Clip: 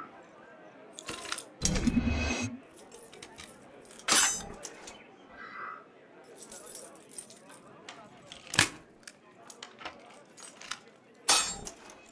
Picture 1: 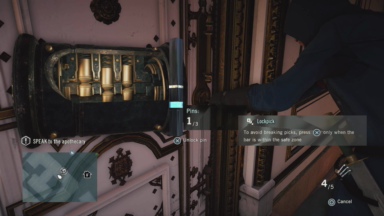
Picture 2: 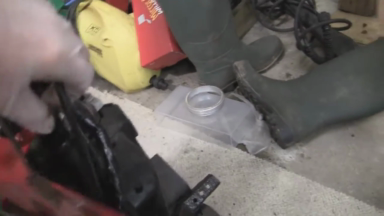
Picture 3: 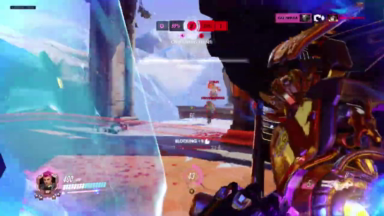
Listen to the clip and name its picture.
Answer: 1